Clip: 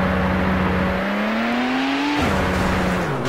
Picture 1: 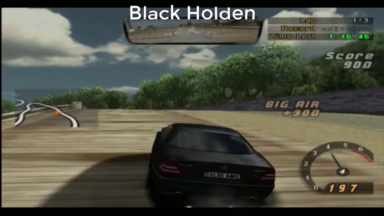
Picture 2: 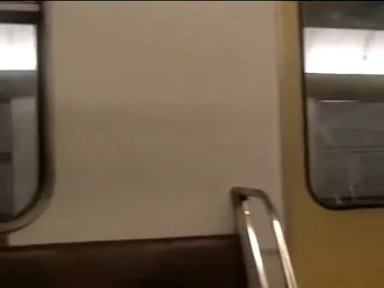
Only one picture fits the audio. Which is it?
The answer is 1